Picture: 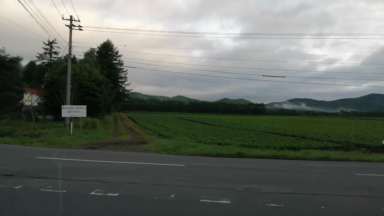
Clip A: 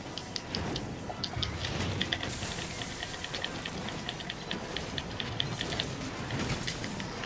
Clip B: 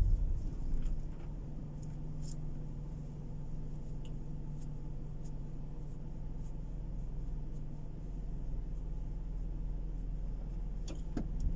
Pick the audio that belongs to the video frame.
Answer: B